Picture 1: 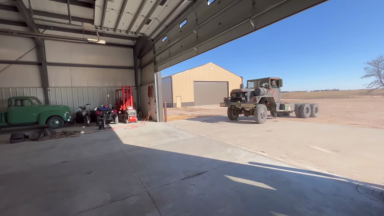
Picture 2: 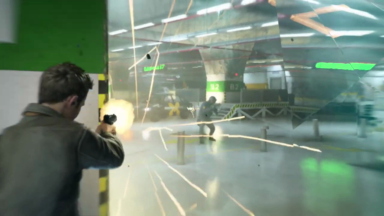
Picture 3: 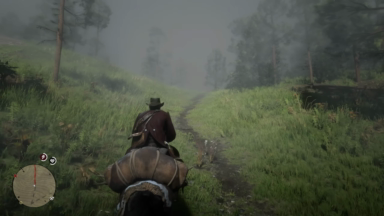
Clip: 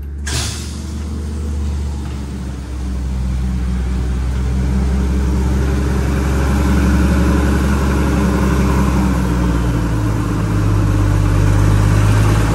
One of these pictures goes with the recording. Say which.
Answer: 1